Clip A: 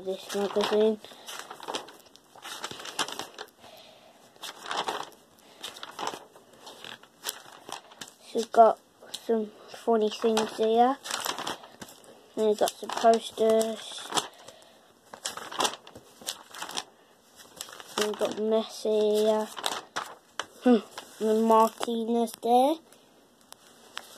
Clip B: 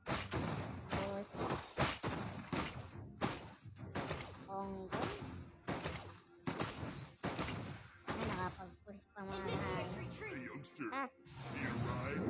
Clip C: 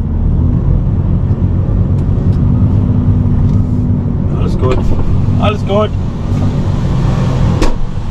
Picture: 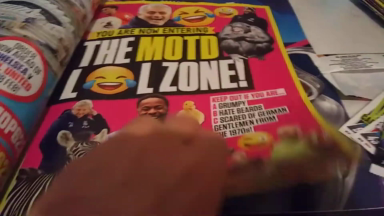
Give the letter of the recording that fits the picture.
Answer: A